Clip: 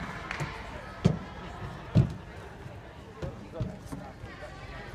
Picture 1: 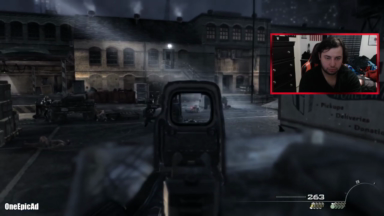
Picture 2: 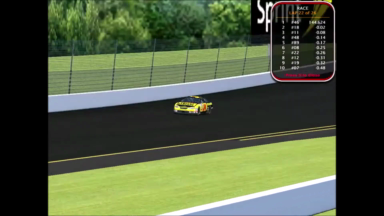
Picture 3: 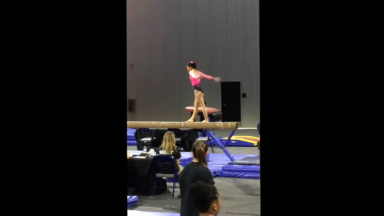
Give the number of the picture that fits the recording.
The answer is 3